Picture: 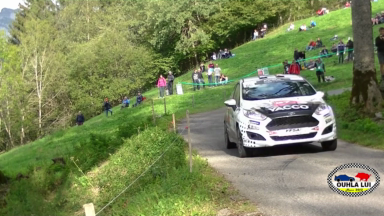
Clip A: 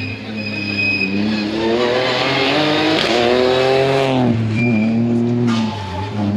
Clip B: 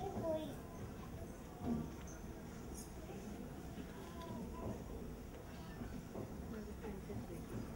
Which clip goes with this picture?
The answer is A